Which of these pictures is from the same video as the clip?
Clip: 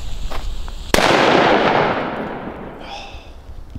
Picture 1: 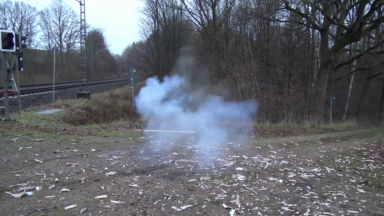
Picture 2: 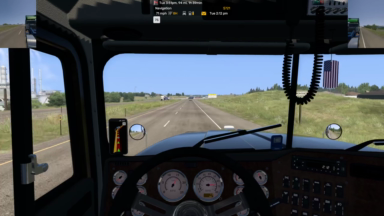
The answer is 1